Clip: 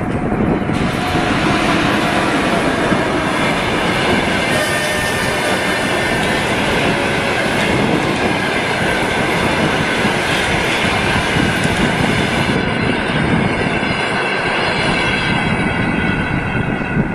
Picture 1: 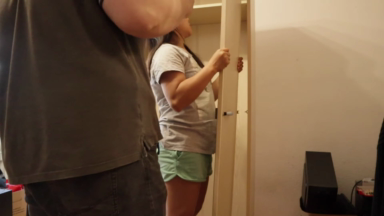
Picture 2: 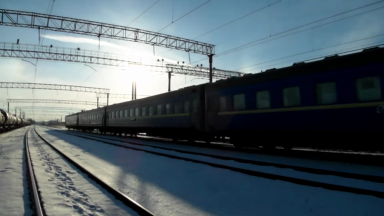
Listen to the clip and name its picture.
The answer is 2